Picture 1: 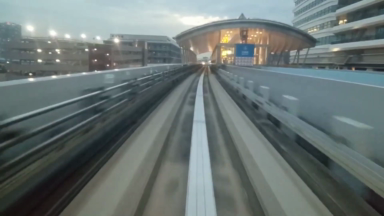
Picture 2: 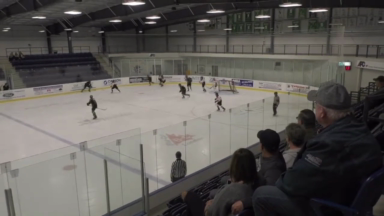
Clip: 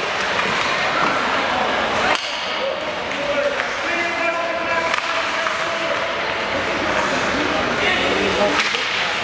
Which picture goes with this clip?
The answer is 2